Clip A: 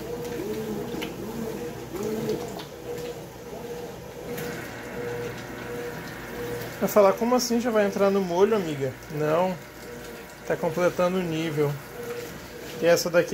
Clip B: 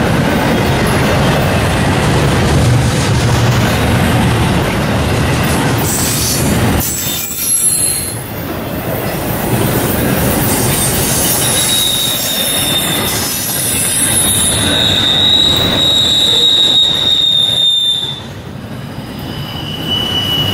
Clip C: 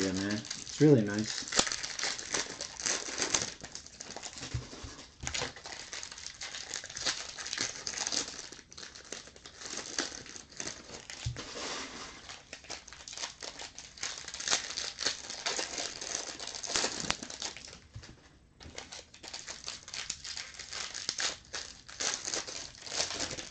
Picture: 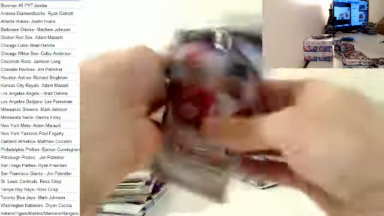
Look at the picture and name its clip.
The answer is C